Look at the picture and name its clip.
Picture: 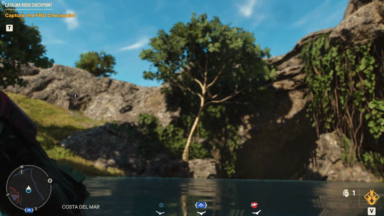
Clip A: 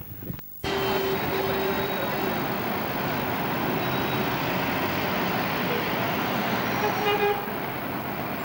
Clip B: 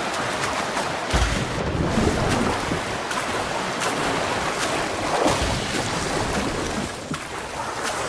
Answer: B